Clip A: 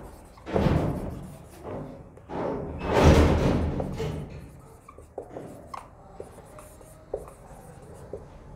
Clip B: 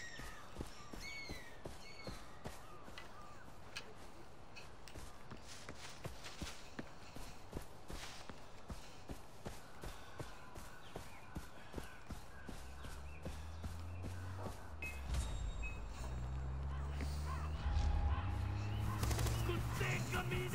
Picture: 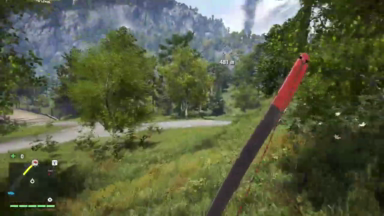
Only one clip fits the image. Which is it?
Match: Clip B